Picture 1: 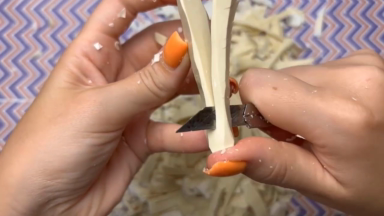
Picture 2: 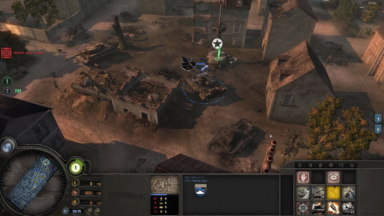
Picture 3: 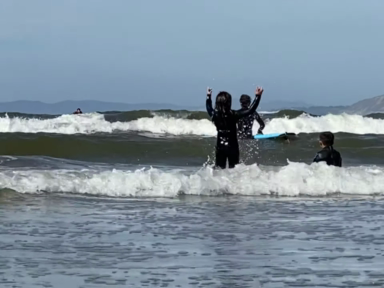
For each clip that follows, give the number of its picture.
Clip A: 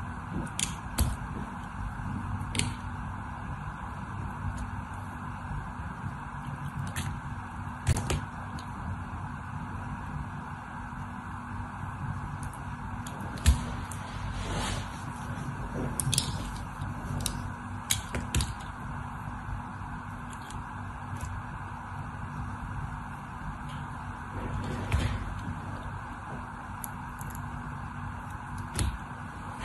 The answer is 1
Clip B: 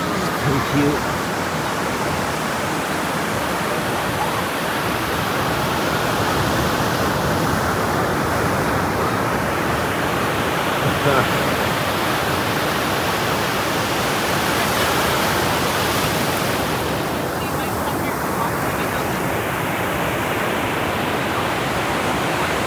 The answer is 3